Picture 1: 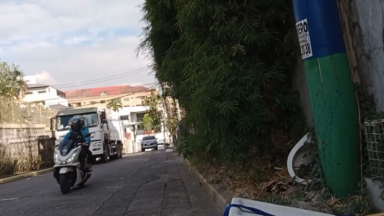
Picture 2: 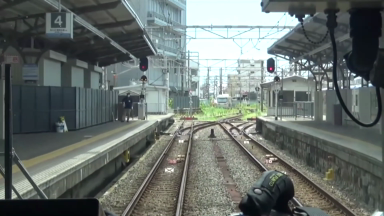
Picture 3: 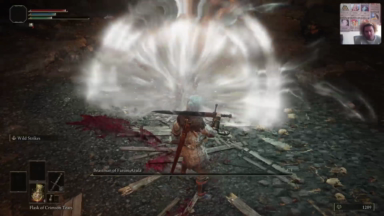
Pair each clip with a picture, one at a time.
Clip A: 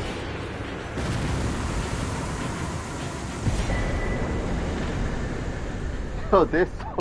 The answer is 3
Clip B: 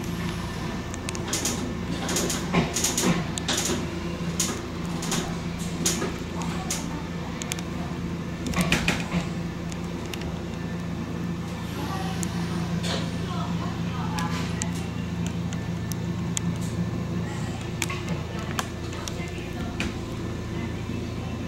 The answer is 2